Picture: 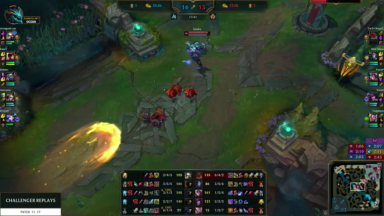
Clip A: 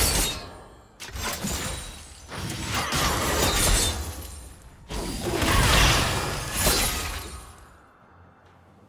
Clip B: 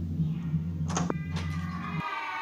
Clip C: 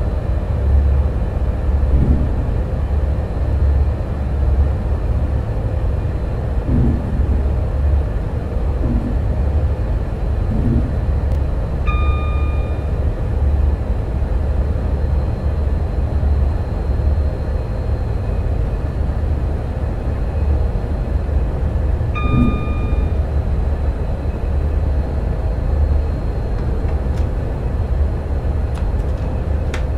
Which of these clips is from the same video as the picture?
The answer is A